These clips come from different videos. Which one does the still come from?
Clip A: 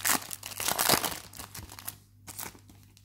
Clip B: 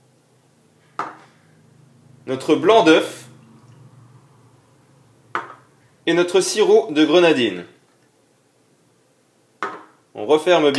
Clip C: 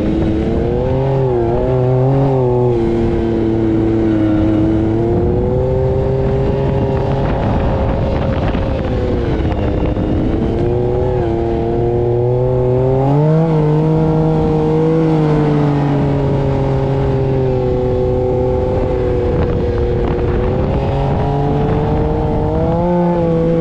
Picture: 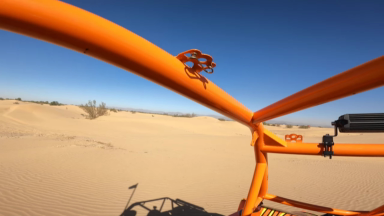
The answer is C